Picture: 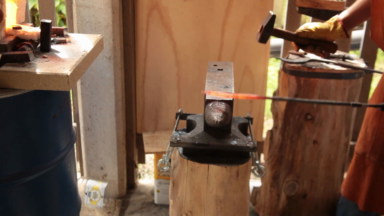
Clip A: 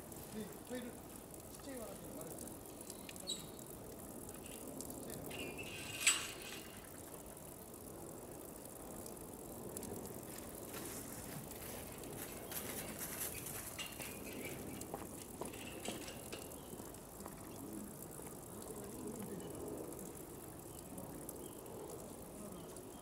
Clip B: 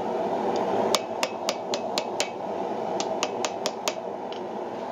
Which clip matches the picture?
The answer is B